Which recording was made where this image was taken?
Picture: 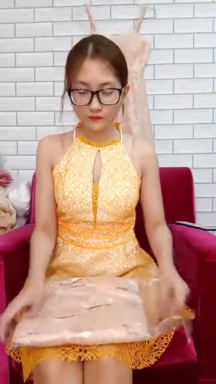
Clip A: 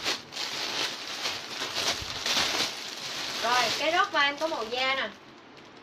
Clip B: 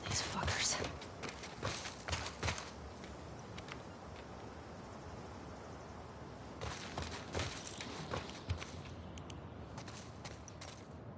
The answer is A